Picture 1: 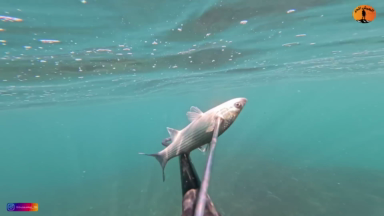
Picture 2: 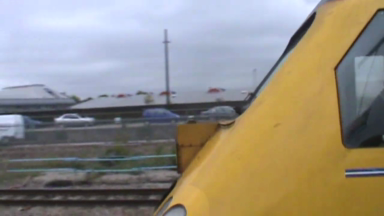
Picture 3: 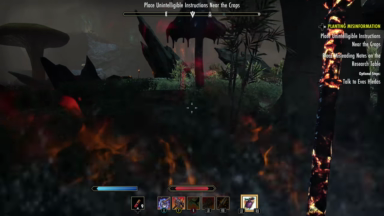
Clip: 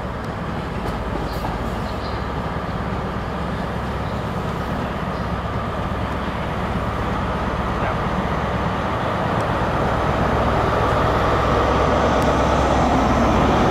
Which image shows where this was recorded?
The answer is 2